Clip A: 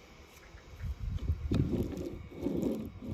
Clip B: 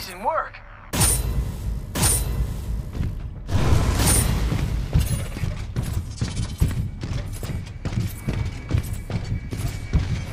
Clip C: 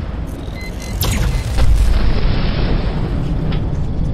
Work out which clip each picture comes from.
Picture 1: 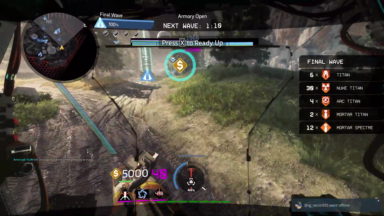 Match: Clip B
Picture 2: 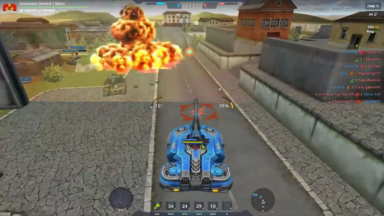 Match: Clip C